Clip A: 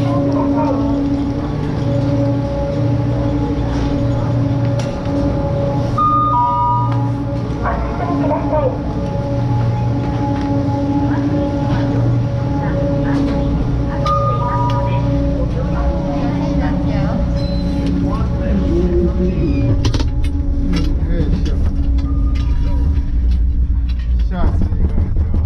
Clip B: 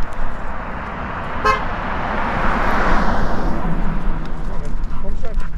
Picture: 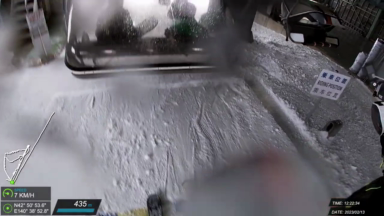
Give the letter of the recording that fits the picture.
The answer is A